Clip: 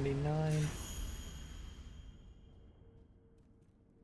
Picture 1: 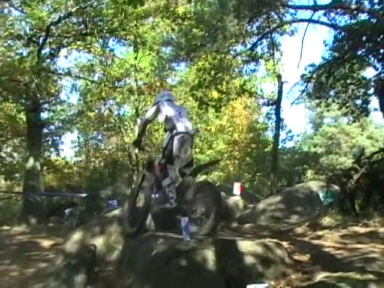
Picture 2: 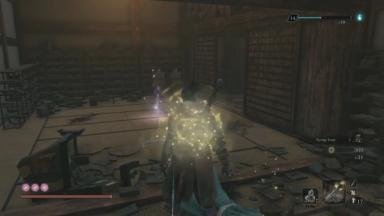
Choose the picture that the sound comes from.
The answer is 2